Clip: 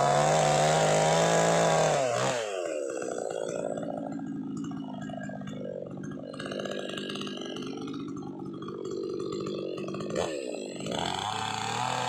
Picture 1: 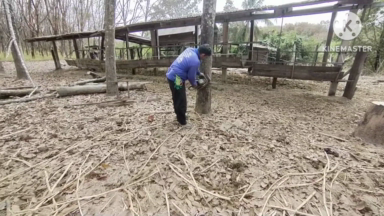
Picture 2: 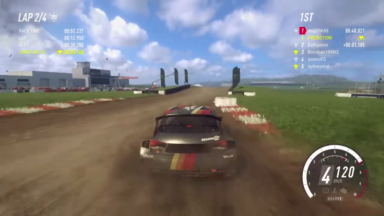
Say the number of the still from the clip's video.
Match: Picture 1